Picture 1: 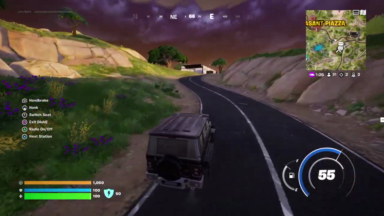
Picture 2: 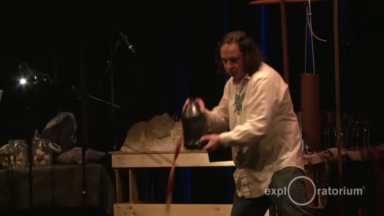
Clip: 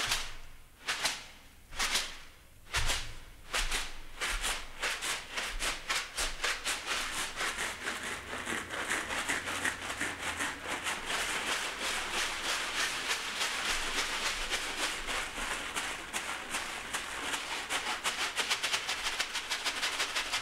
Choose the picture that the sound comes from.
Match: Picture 2